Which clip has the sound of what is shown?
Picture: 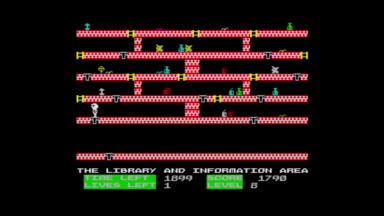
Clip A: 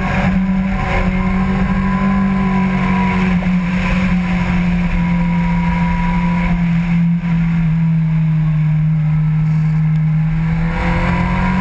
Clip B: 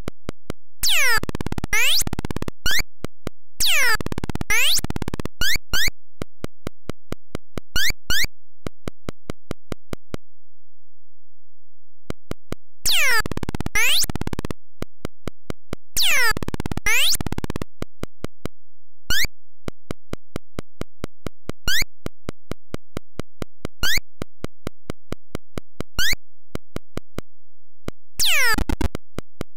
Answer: B